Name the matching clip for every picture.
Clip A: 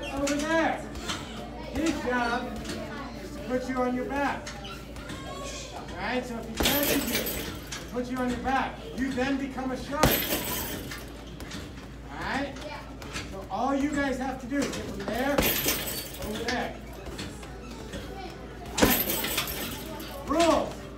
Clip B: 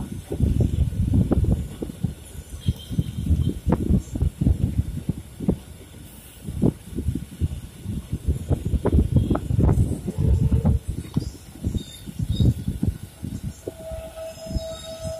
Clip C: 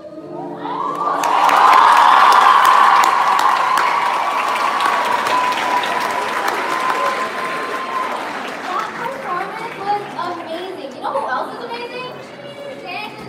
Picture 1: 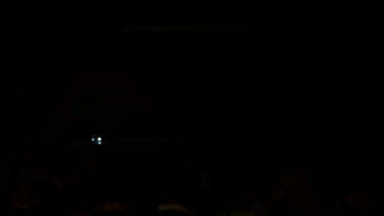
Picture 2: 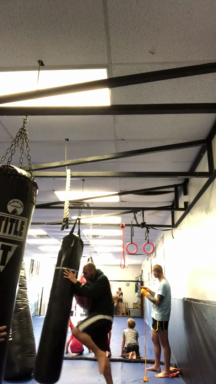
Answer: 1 C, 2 A